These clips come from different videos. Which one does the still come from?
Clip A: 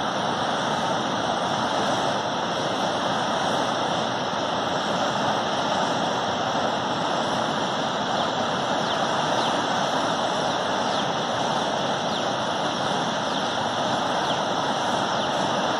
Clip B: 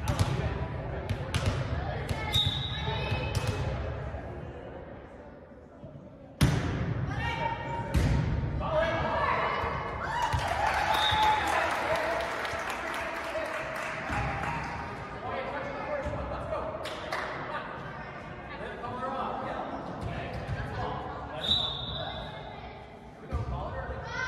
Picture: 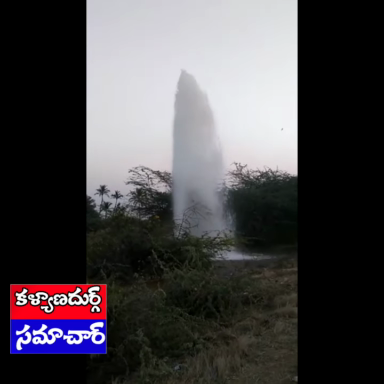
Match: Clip A